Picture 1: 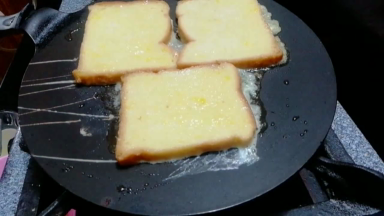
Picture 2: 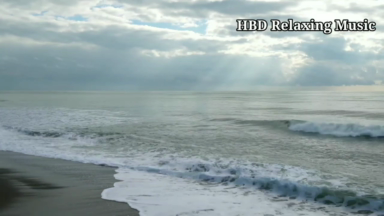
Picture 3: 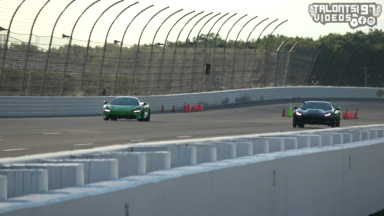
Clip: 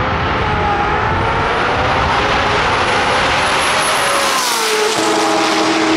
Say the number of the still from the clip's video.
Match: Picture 3